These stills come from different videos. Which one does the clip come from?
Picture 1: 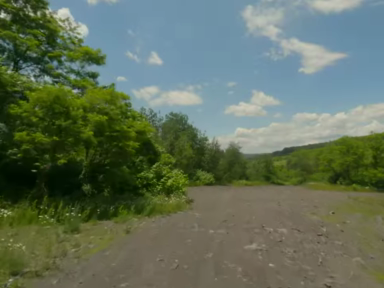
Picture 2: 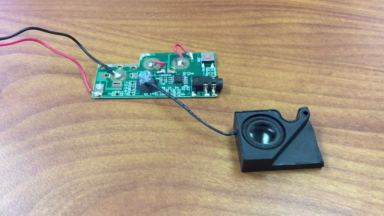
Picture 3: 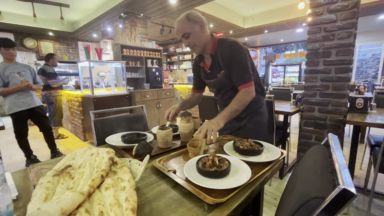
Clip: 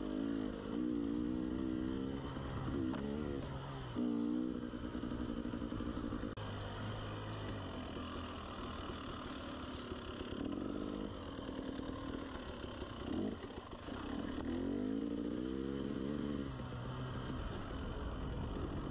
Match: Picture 1